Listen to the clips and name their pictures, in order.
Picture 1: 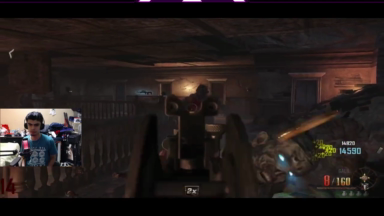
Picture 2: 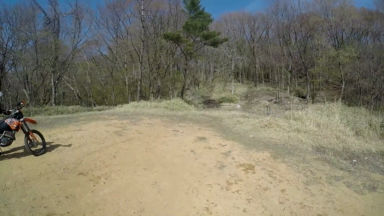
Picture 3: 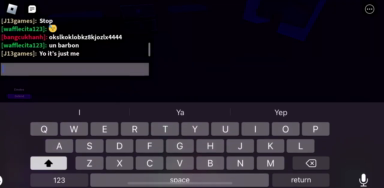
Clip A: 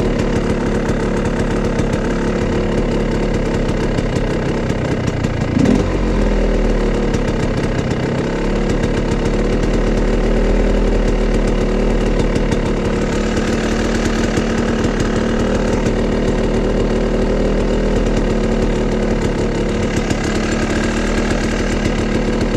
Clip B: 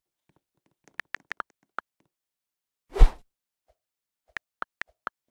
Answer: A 2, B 3